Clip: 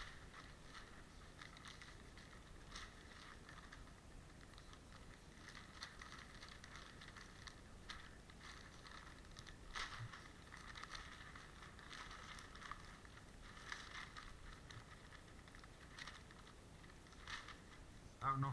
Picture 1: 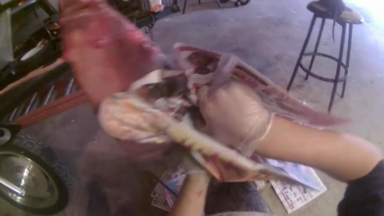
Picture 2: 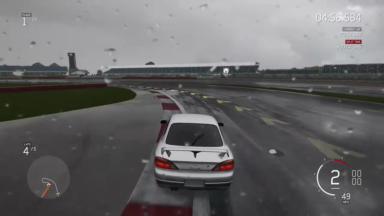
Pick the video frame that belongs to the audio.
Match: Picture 1